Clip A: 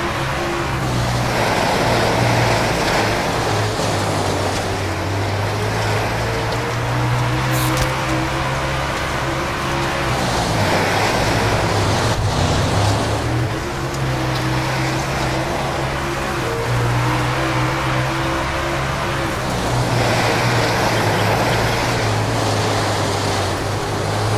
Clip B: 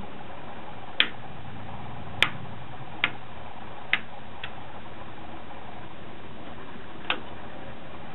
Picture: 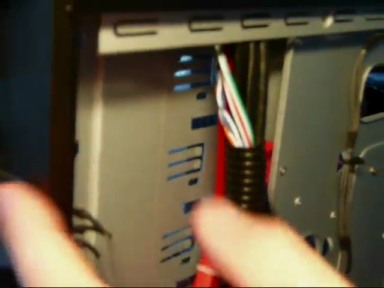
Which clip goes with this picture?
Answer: B